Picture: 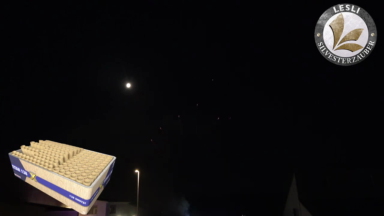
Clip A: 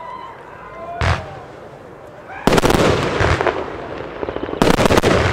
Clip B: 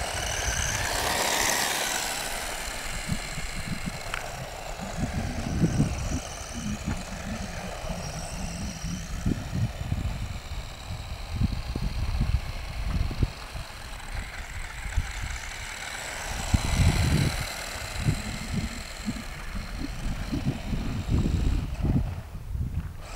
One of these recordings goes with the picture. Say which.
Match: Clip A